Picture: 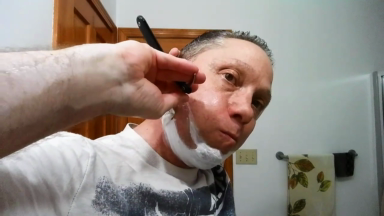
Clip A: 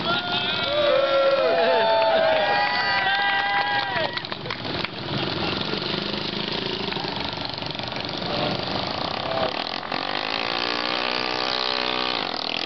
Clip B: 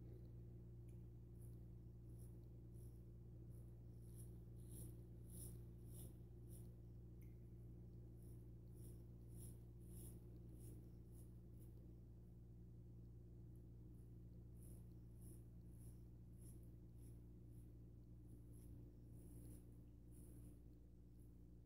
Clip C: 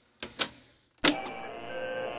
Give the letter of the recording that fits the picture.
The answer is B